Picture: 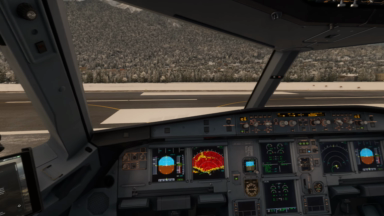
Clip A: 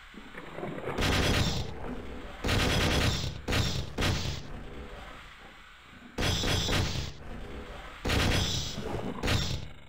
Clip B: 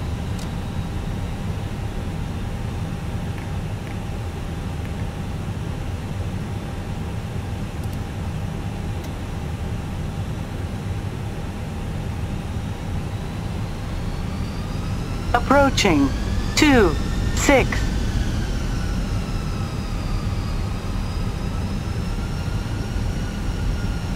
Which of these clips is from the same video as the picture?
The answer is B